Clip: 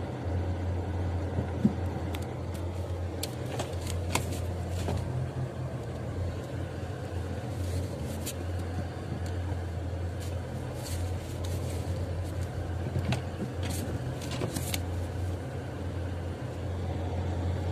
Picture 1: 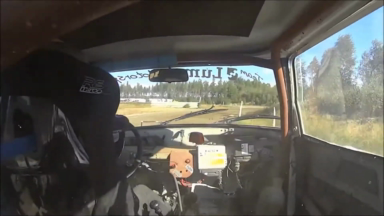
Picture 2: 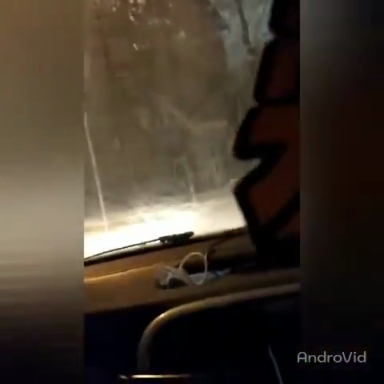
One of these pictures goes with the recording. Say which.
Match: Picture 2